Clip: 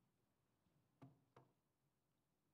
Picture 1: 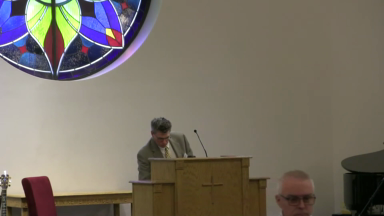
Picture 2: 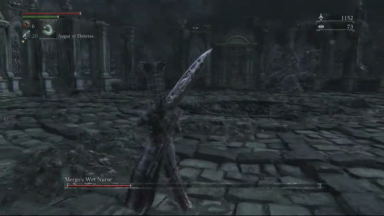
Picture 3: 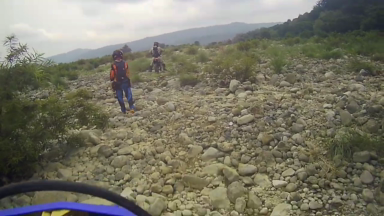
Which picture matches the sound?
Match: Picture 1